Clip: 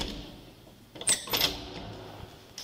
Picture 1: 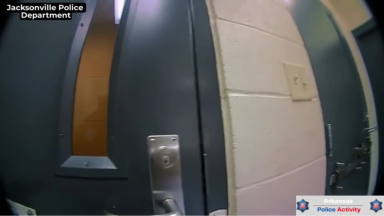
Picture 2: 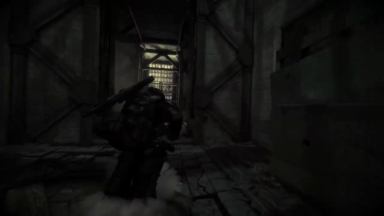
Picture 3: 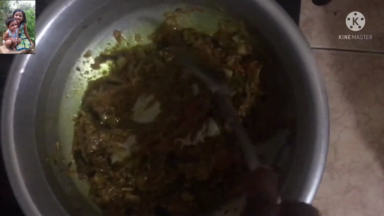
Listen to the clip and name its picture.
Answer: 1